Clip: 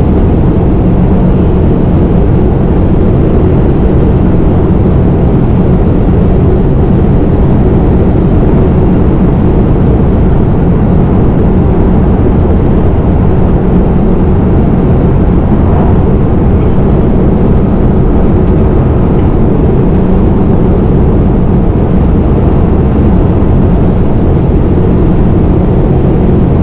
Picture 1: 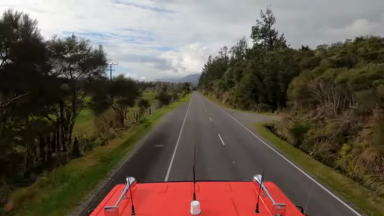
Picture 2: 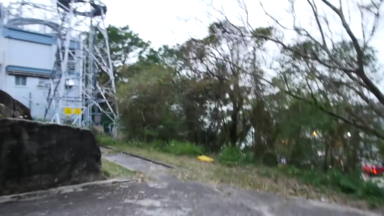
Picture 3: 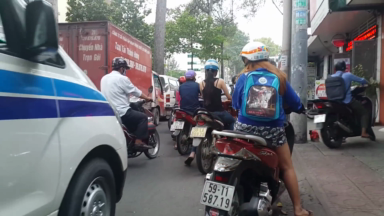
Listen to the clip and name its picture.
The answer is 1